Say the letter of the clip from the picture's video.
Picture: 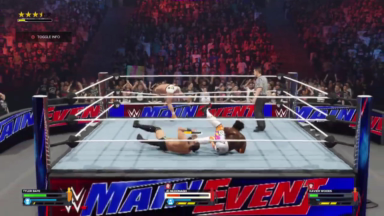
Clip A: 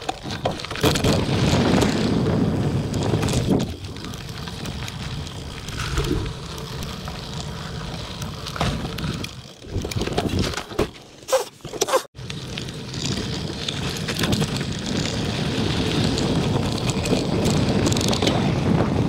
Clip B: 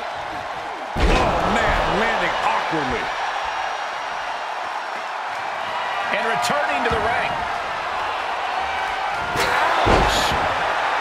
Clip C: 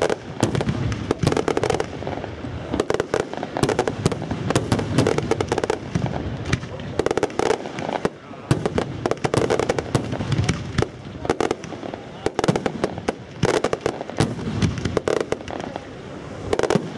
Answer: B